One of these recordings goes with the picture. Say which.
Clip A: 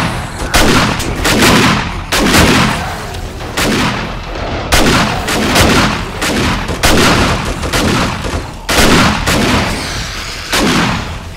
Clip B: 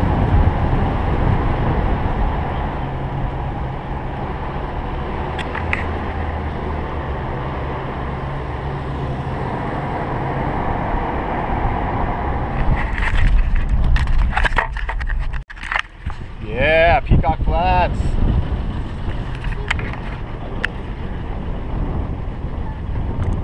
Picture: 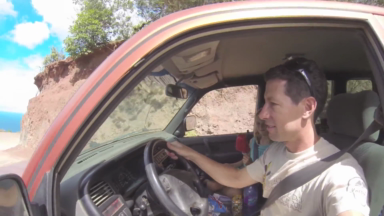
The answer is B